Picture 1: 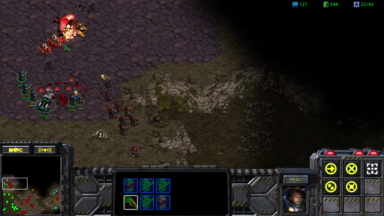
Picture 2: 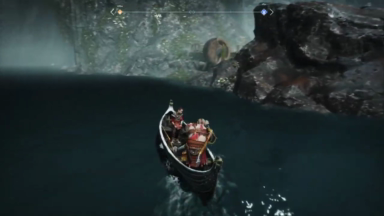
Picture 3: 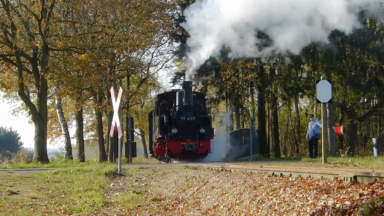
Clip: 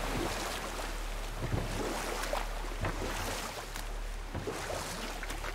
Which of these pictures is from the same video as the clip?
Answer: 2